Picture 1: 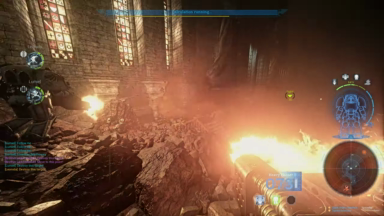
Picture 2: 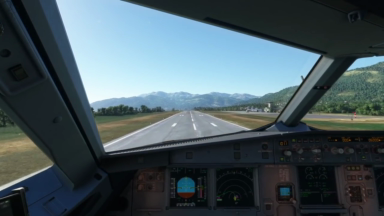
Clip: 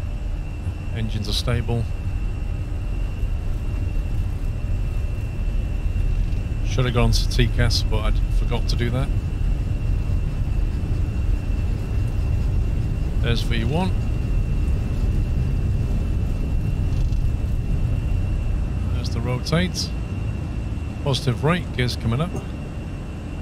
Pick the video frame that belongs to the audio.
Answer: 2